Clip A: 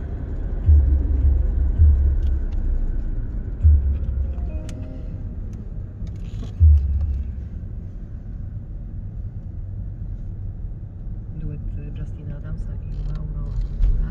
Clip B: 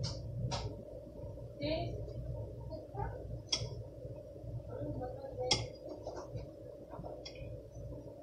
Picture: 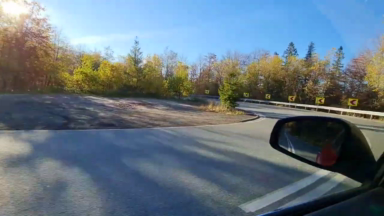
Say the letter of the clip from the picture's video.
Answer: A